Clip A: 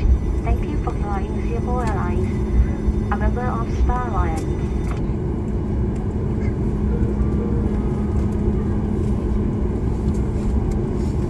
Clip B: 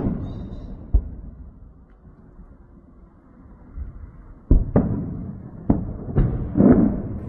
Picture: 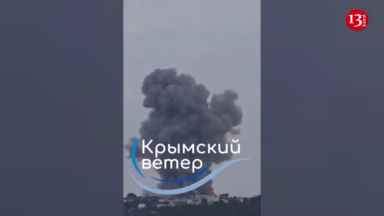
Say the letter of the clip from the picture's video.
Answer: B